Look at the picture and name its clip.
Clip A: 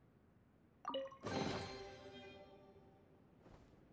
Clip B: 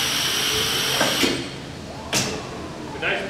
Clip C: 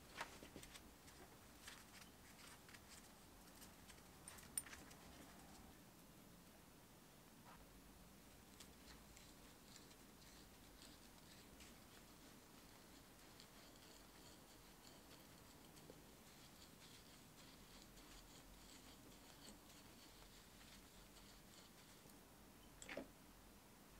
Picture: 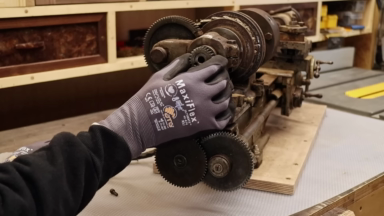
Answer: C